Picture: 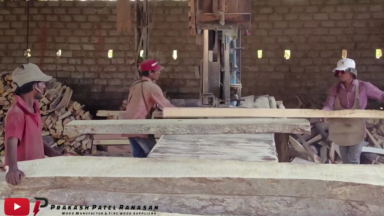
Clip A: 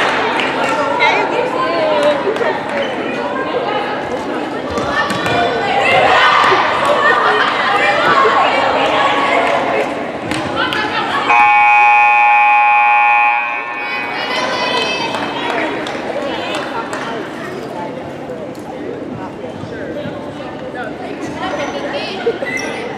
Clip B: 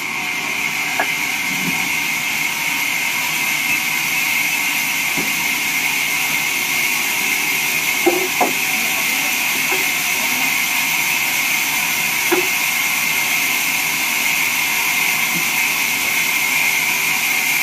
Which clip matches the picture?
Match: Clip B